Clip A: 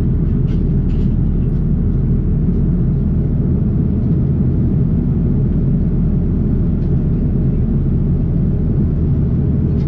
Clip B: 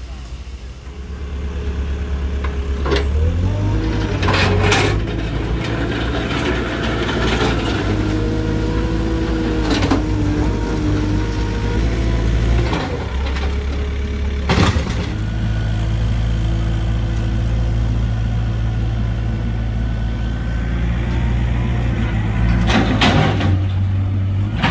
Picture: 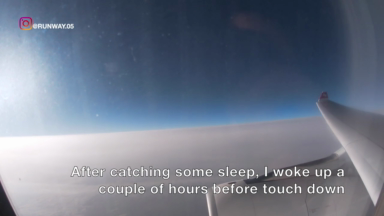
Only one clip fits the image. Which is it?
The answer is A